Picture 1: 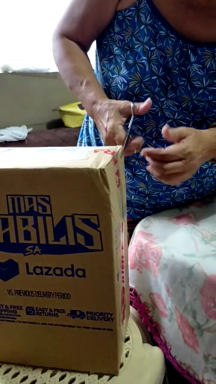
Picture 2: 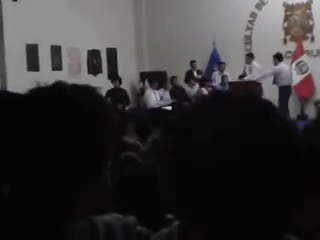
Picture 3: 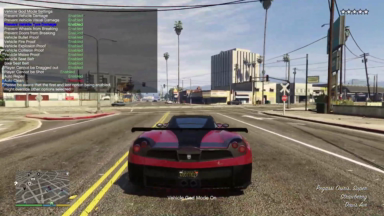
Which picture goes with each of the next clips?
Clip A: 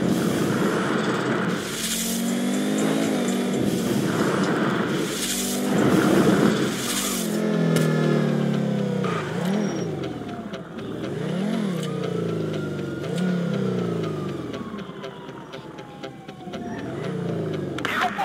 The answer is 3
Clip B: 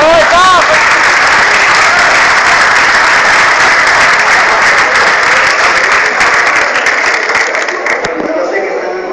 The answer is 2